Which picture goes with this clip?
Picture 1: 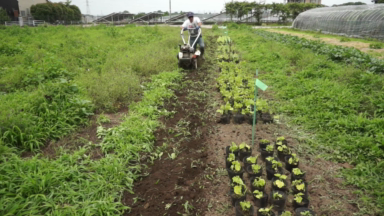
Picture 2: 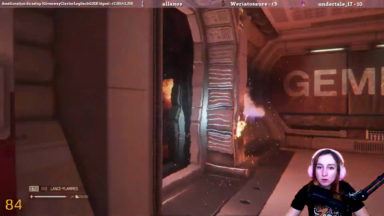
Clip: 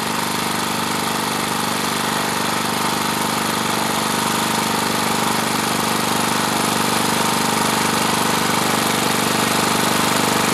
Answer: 1